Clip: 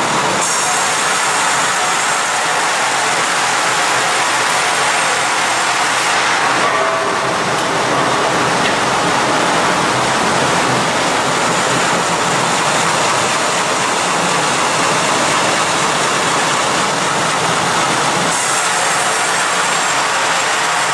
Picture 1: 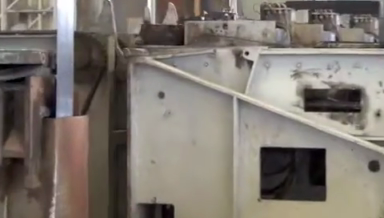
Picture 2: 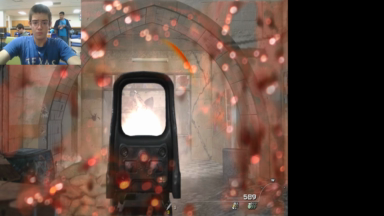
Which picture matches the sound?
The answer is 1